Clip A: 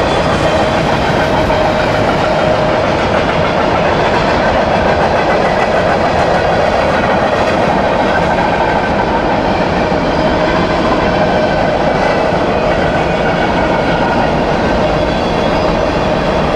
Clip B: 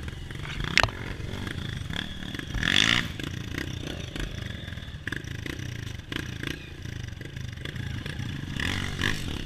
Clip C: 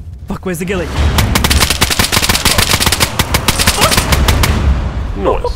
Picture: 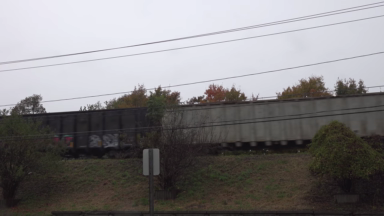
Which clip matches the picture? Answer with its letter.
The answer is A